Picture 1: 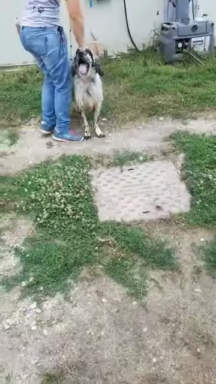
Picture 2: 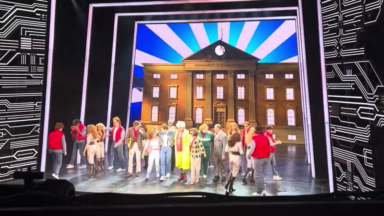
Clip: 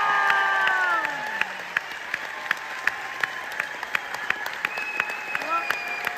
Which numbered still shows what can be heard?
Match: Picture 2